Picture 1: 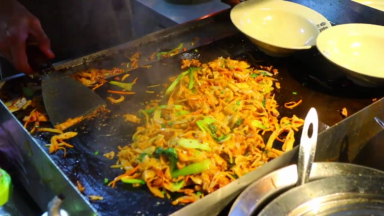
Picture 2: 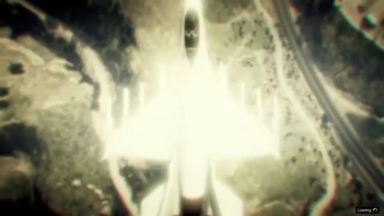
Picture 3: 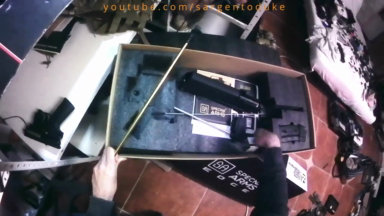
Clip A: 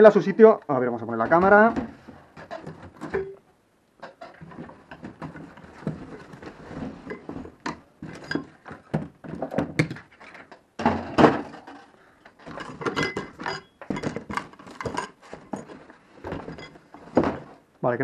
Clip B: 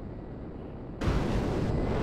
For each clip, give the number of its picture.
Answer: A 3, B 2